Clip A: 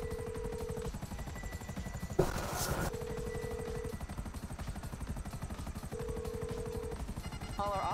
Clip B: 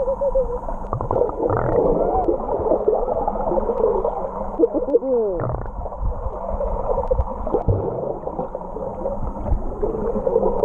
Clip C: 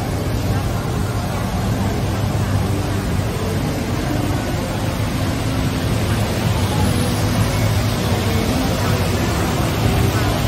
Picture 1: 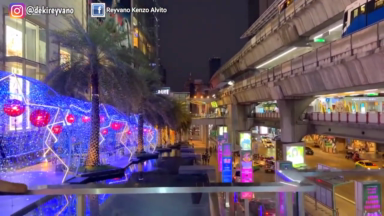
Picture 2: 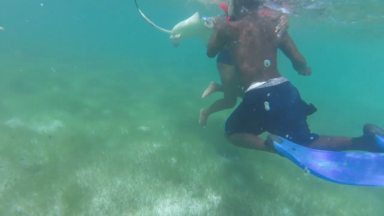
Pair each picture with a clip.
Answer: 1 C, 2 B